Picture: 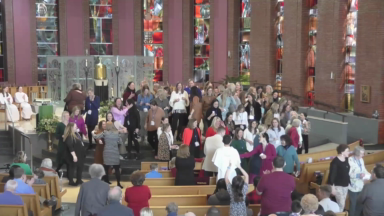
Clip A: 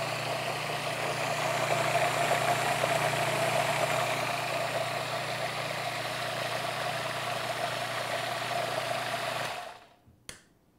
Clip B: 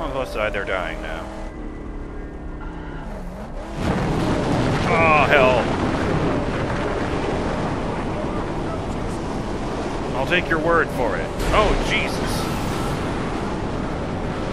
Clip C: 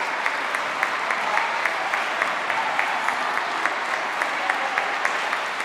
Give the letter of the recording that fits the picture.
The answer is C